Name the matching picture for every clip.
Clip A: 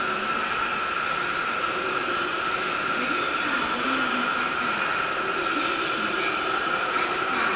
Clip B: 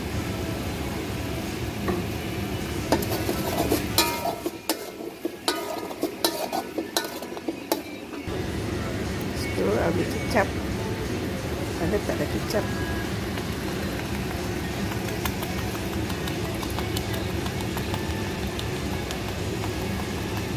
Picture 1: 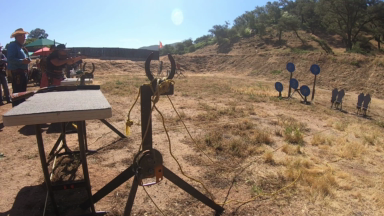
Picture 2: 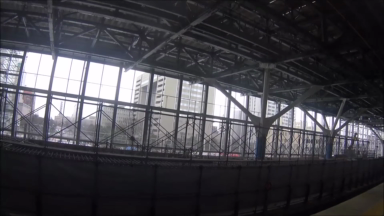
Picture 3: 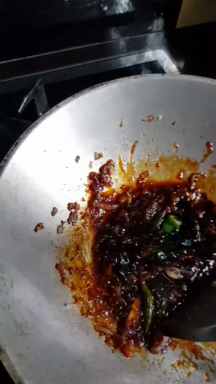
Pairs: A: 2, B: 3